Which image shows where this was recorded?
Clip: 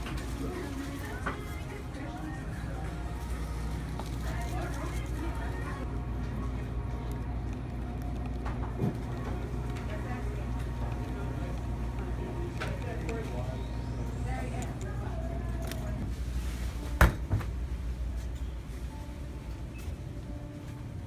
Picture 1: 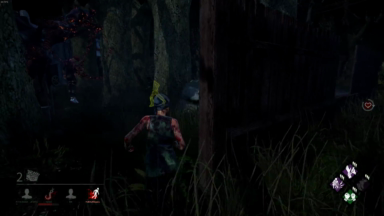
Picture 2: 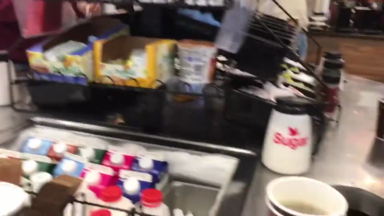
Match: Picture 2